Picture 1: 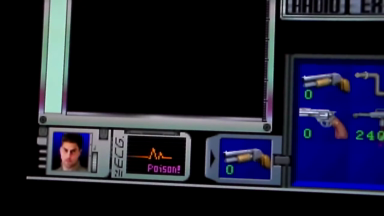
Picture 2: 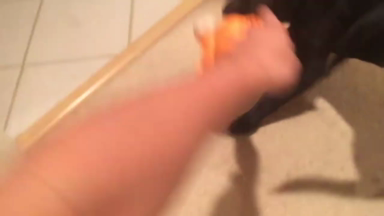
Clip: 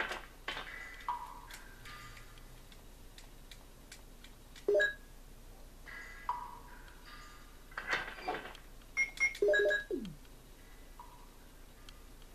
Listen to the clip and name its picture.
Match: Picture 1